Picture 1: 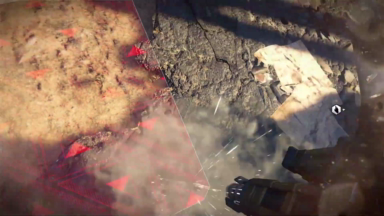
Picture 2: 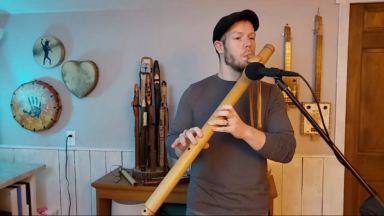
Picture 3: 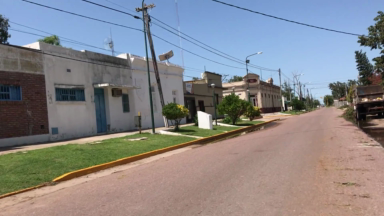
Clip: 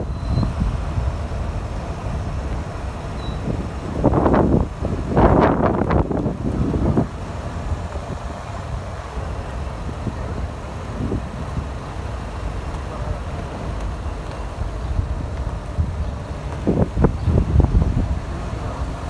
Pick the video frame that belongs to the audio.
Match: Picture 3